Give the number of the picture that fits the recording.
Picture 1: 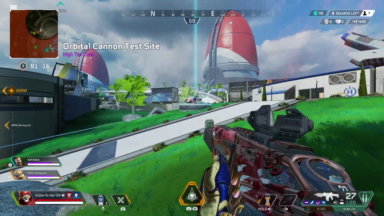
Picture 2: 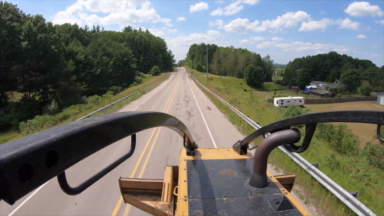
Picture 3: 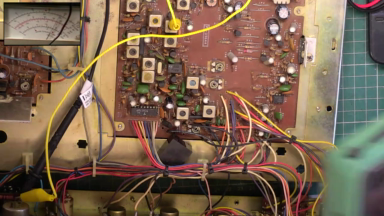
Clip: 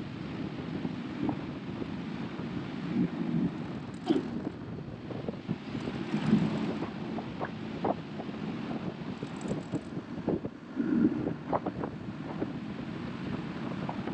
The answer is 2